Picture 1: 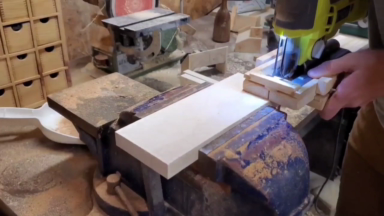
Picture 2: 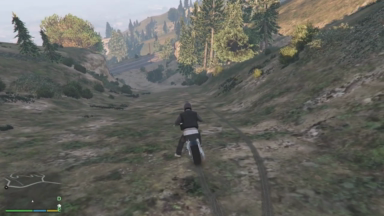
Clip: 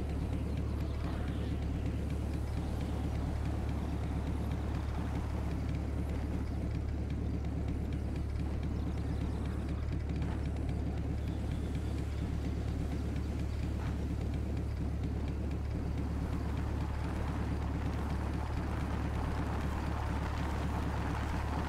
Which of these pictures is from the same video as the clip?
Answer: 2